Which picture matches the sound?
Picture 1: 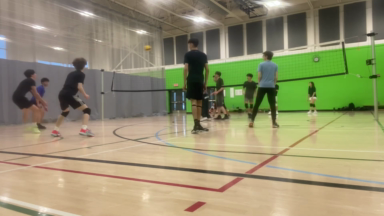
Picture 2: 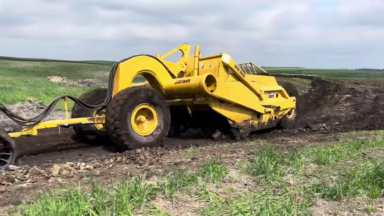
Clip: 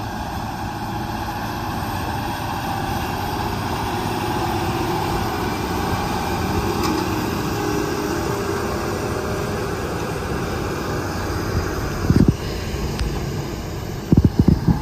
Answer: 2